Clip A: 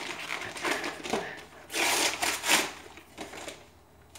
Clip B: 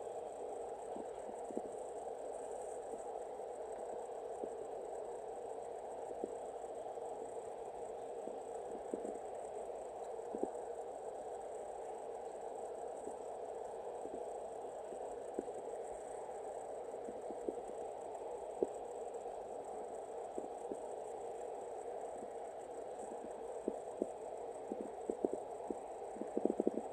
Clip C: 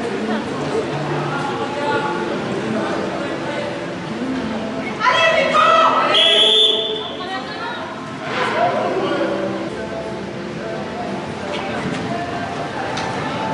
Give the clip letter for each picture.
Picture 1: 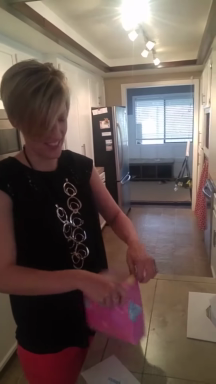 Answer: A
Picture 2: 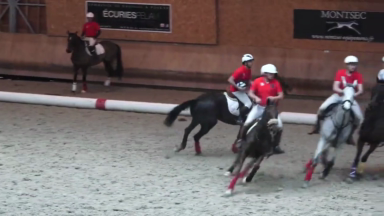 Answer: C